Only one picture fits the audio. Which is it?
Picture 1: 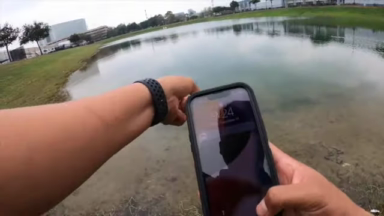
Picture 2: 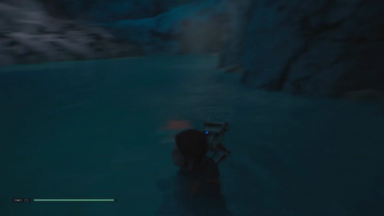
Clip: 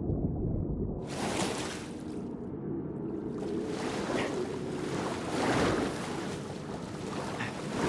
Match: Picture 2